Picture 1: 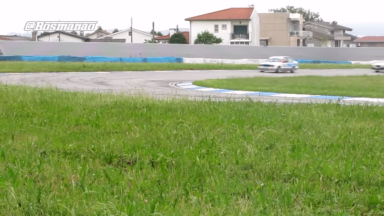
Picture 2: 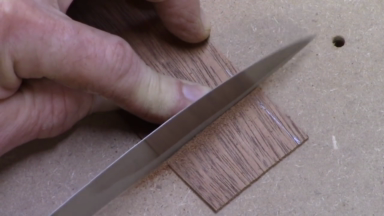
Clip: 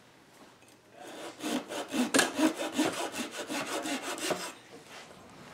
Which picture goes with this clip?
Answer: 2